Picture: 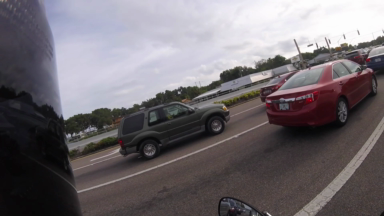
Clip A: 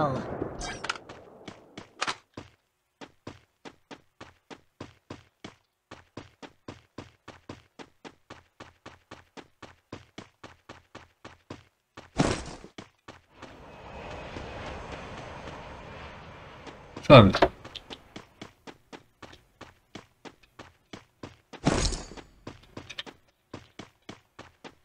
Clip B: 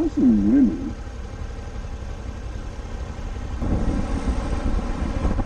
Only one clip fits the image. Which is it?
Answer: B